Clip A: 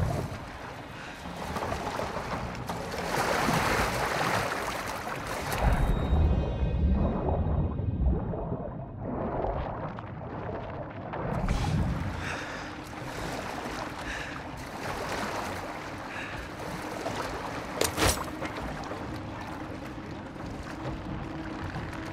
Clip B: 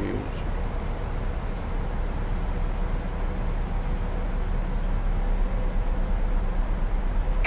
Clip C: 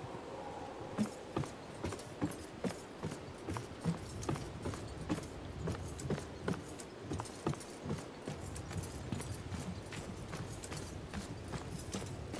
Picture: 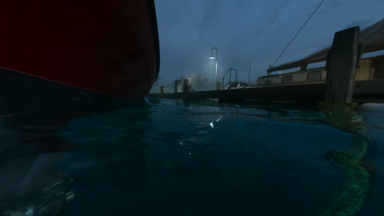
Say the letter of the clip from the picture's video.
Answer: A